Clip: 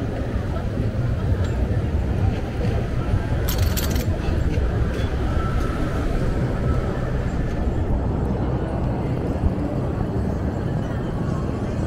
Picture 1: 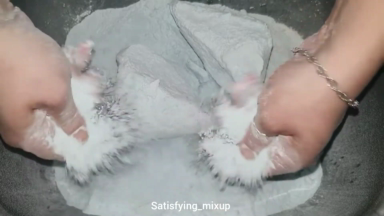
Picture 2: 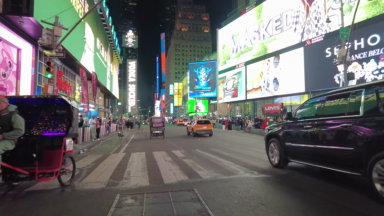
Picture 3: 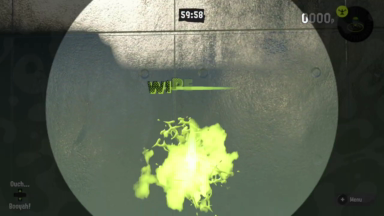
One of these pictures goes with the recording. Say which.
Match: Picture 2